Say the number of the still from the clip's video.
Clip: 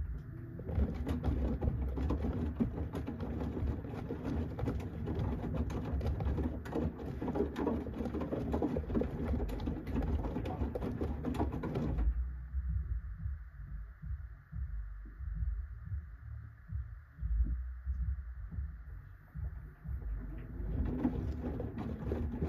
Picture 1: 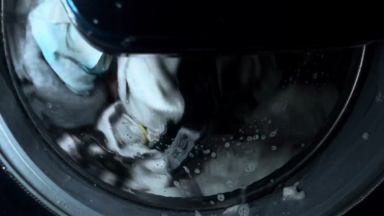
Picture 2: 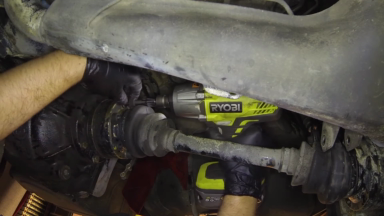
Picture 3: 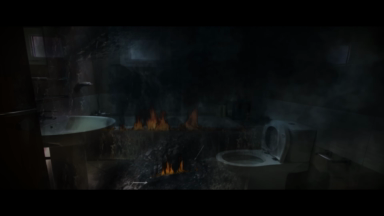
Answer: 1